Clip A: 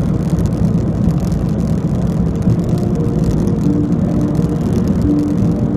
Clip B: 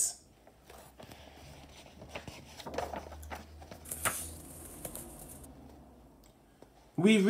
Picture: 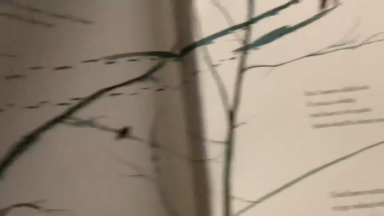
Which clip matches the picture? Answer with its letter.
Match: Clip B